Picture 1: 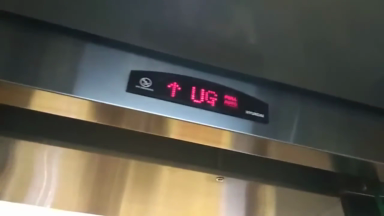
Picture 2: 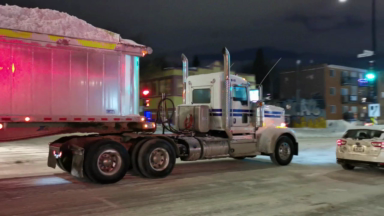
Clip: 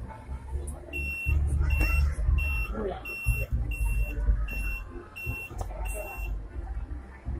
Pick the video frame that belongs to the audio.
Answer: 1